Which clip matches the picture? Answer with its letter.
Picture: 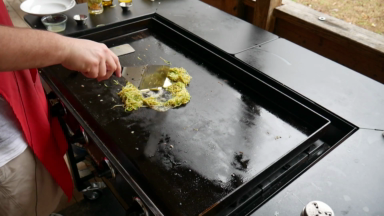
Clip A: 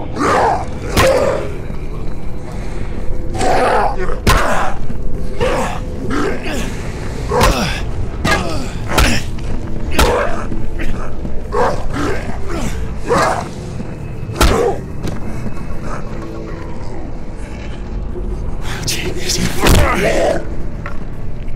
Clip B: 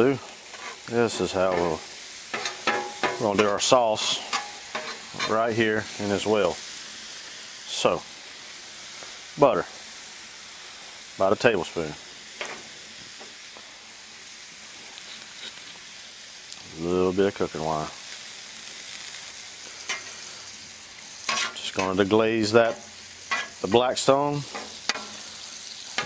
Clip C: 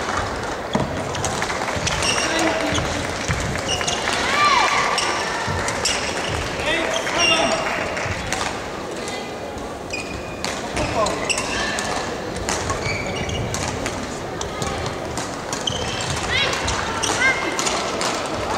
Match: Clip B